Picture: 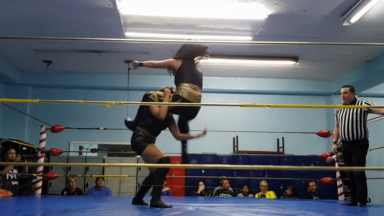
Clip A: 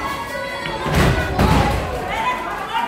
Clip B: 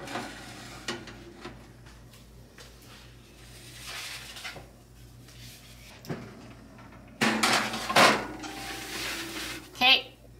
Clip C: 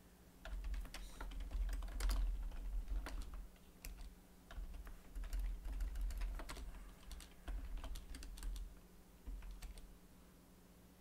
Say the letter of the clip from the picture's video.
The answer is A